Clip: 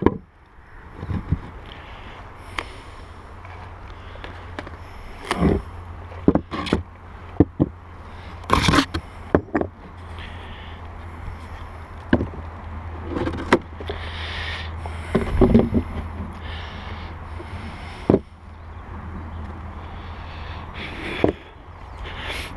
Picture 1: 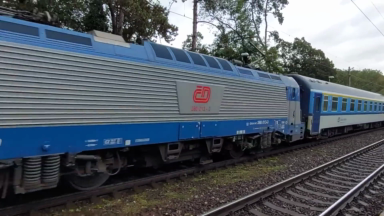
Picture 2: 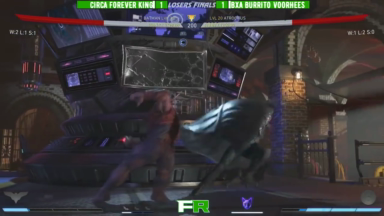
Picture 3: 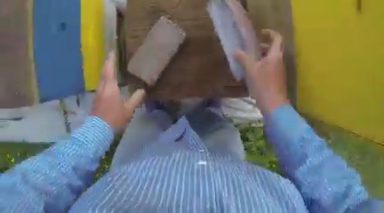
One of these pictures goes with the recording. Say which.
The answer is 3